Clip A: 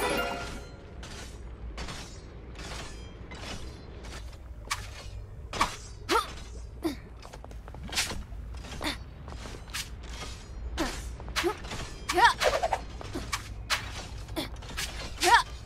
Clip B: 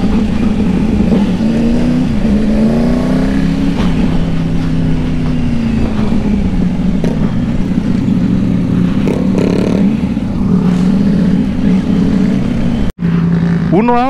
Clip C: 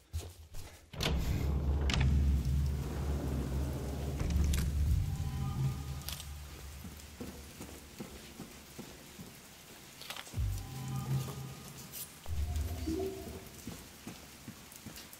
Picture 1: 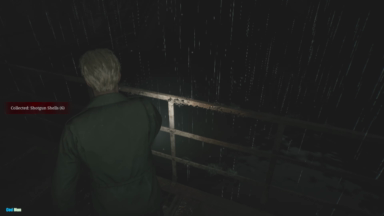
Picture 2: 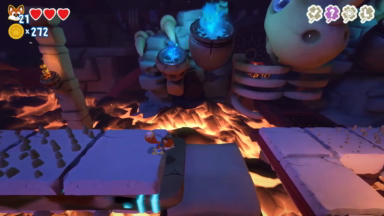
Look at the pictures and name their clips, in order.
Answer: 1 C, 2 A